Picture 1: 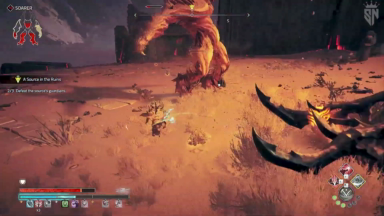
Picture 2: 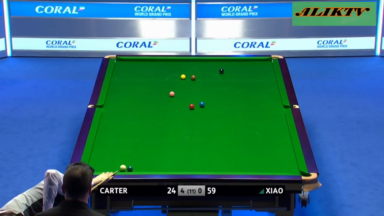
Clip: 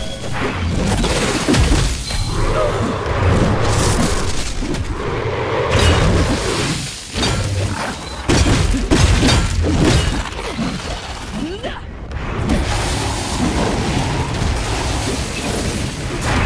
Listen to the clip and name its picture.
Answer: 1